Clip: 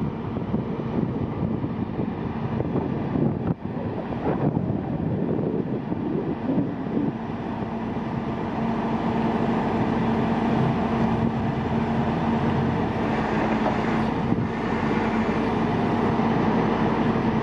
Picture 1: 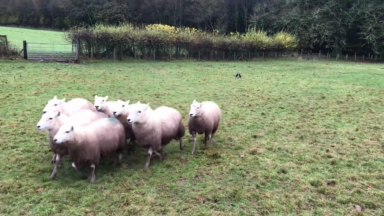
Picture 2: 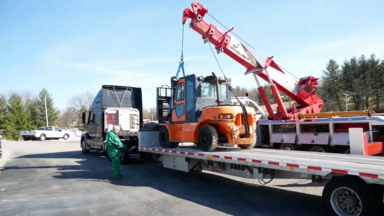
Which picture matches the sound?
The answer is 2